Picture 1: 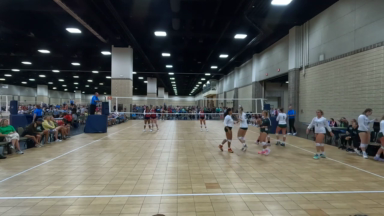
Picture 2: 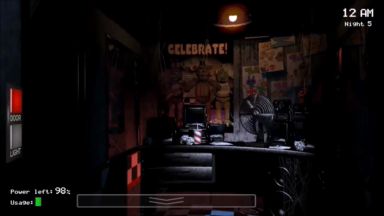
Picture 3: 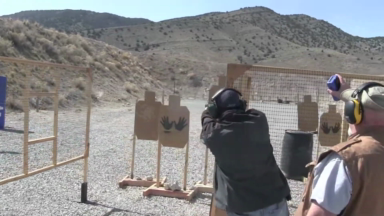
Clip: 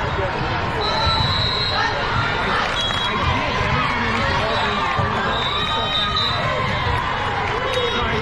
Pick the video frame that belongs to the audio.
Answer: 1